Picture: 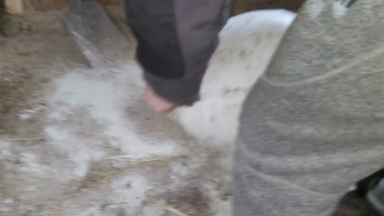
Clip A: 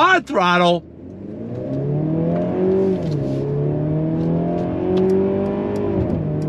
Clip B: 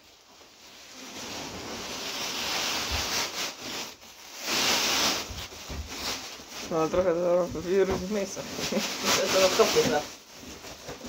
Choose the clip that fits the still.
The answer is B